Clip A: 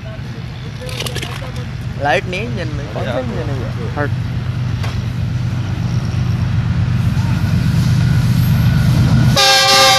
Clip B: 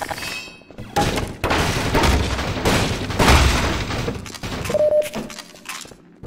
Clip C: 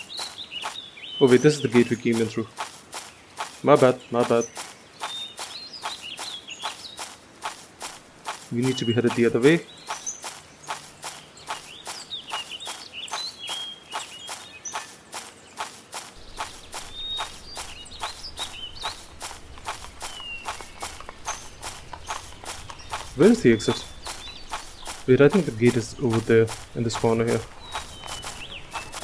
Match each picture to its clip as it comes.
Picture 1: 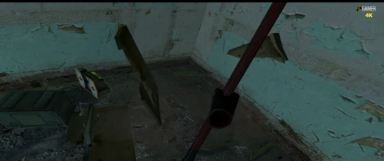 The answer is B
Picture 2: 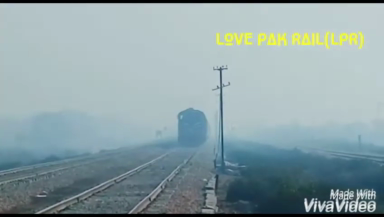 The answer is A